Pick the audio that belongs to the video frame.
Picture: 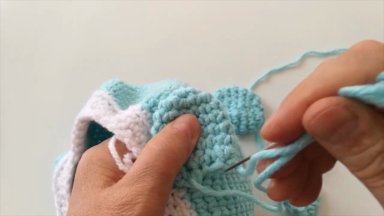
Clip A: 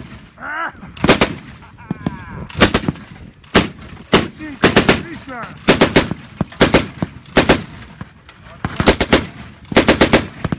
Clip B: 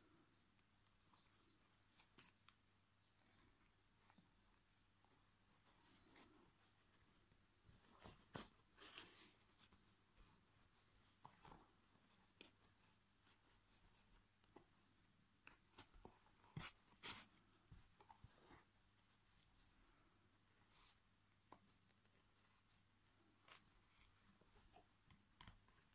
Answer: B